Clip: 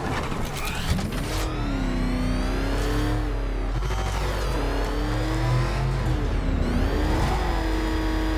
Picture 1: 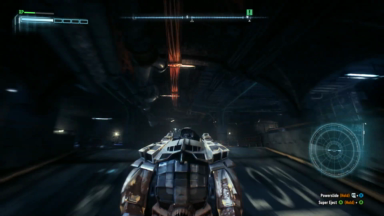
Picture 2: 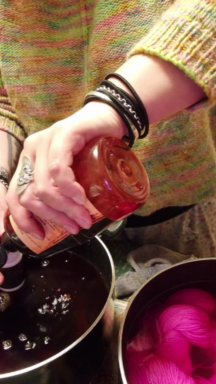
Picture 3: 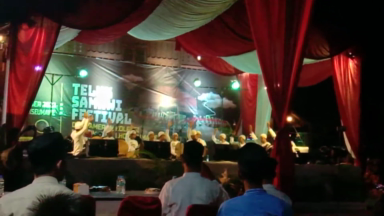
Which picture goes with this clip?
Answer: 1